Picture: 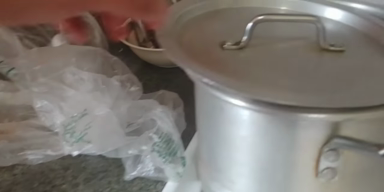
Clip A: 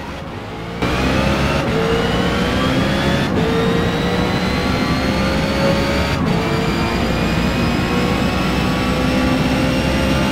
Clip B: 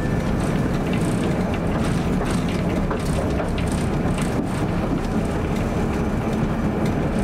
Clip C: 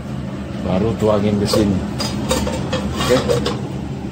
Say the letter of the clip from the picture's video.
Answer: C